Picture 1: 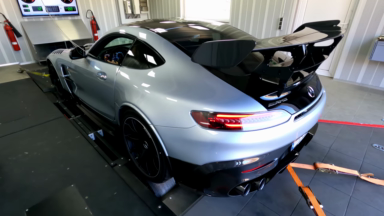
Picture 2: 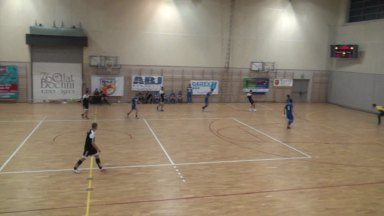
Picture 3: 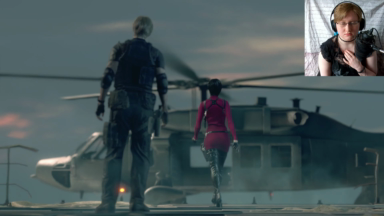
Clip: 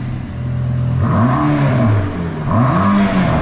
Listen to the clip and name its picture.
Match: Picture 1